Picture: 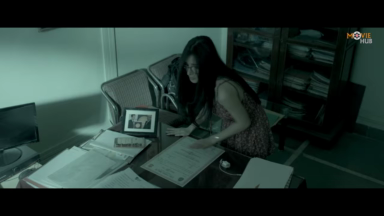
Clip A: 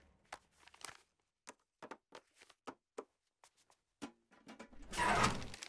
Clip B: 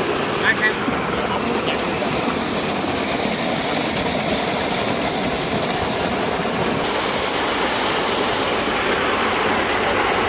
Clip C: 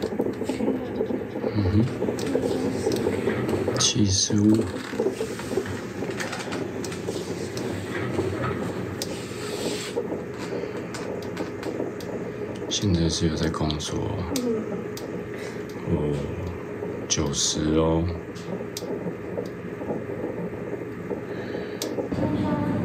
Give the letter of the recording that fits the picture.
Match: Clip A